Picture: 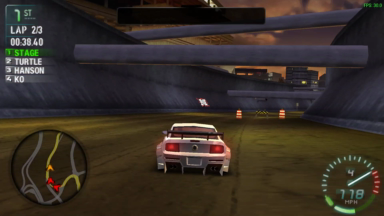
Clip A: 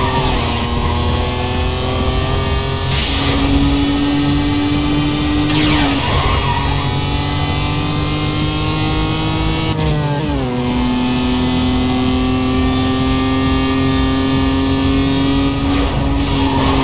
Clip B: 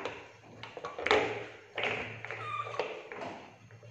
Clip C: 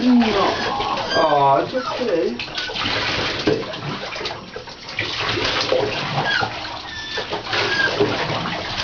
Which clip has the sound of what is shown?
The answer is A